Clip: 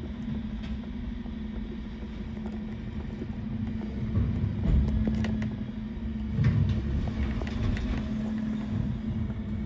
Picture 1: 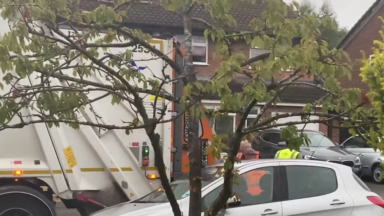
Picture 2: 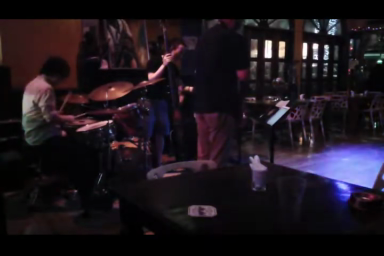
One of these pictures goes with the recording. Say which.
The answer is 1